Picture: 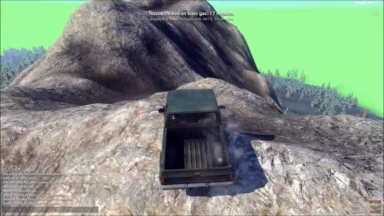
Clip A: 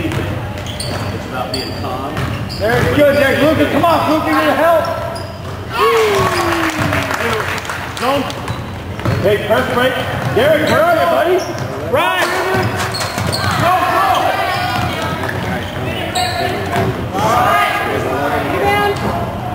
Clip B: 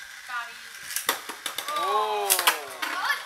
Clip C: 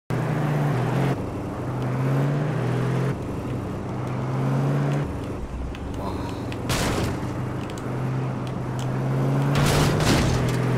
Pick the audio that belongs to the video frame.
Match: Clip C